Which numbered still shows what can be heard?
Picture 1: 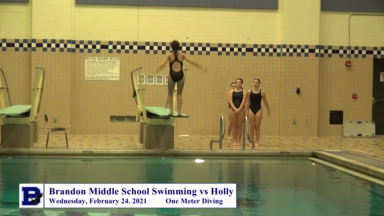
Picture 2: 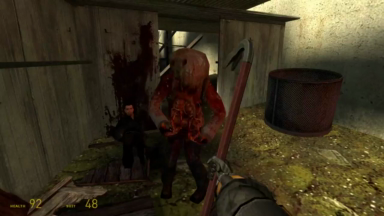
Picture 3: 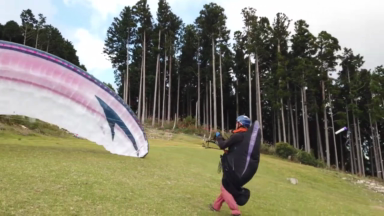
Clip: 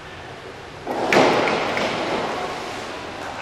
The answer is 1